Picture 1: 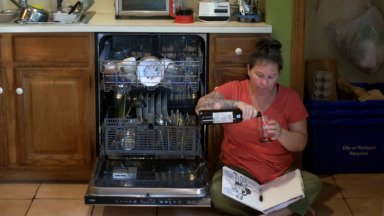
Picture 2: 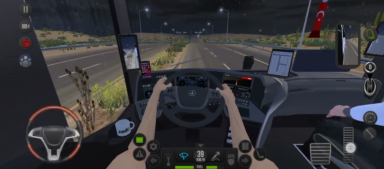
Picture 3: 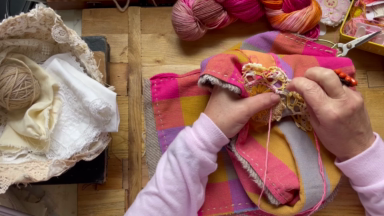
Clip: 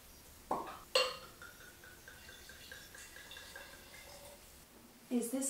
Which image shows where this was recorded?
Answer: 1